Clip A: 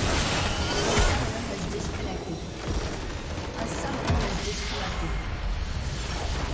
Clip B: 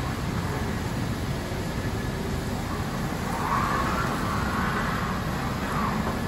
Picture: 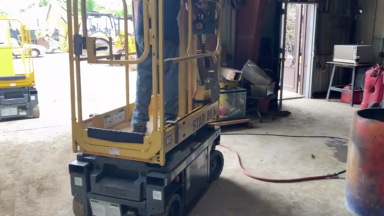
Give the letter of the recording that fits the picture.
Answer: B